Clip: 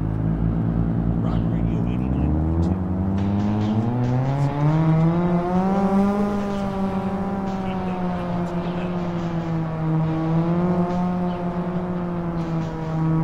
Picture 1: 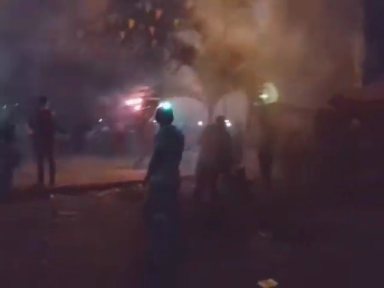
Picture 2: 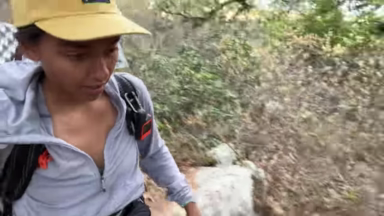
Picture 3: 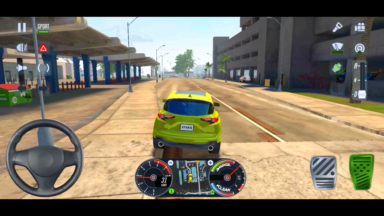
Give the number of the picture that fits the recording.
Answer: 3